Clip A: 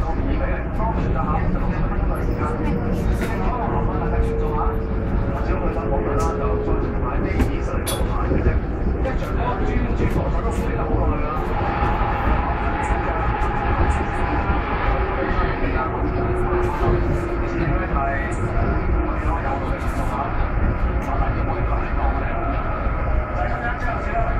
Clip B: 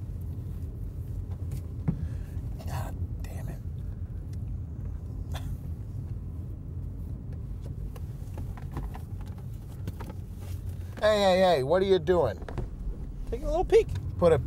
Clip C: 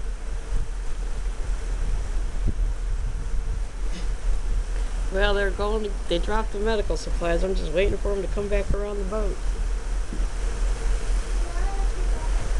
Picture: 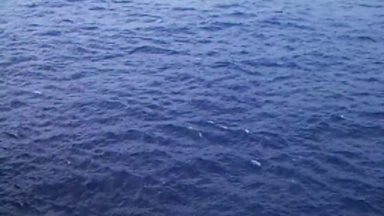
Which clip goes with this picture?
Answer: C